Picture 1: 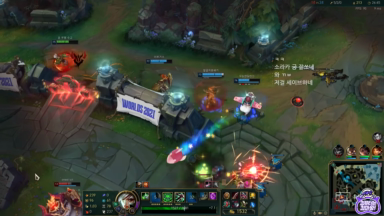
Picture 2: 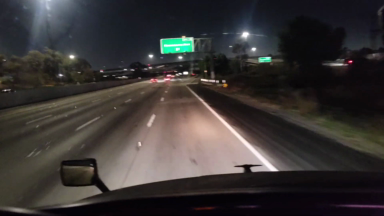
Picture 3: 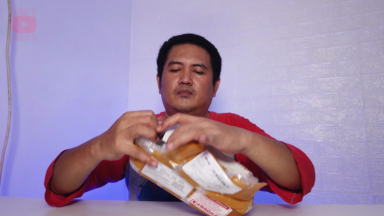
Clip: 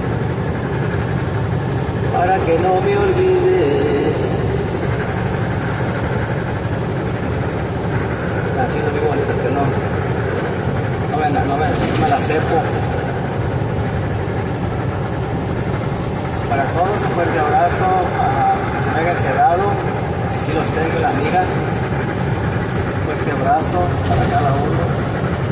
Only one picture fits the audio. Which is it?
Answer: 2